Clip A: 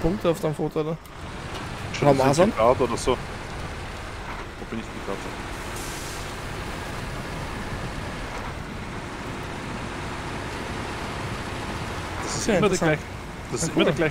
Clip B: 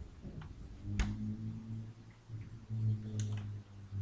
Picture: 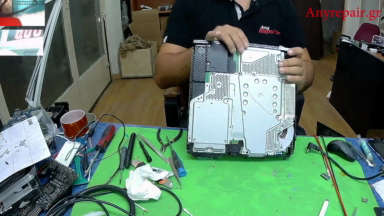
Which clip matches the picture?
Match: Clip B